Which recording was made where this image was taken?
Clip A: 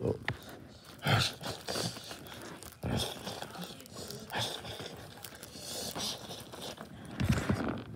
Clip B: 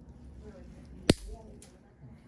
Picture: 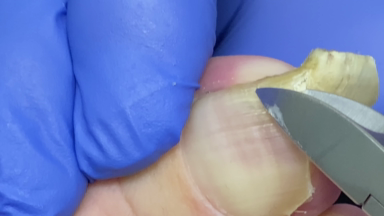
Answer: B